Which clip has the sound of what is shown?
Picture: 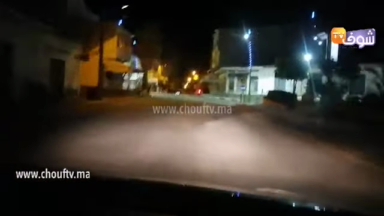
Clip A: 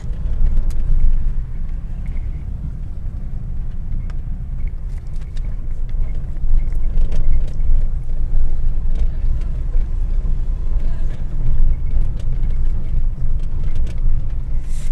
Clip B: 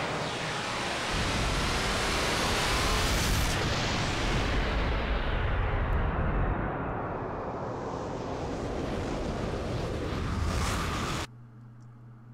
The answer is A